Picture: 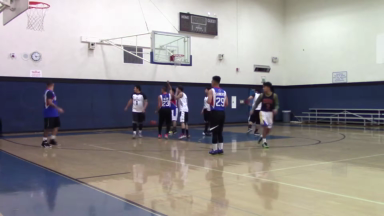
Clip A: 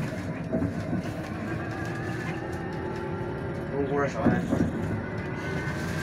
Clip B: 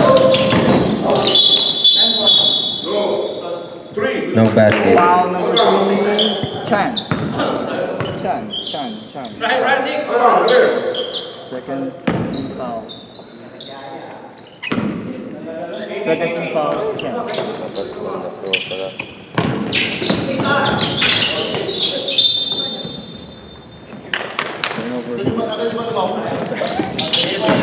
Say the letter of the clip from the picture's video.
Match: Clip B